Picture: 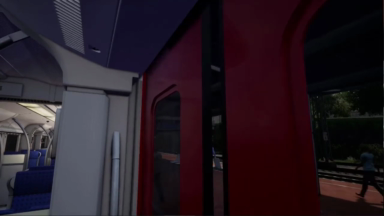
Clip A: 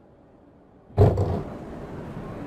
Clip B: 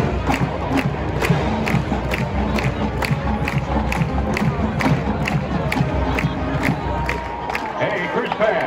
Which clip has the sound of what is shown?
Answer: A